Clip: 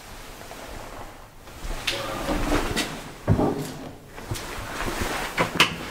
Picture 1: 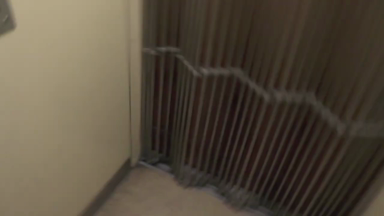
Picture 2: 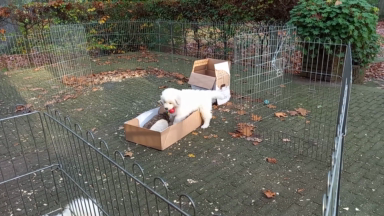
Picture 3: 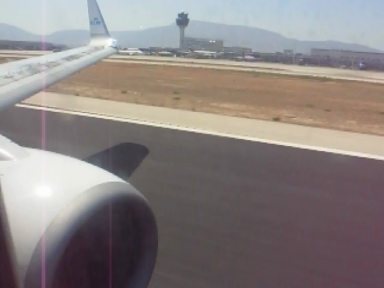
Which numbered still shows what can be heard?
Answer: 1